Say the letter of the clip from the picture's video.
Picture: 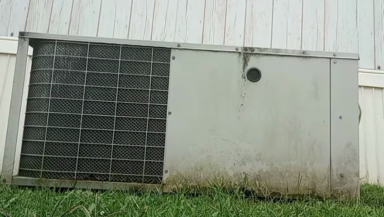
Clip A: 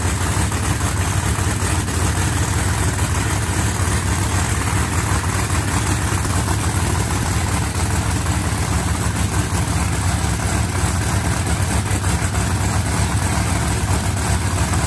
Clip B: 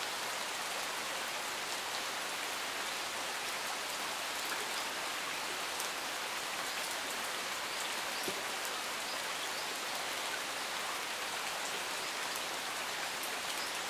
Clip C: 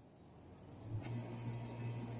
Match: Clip C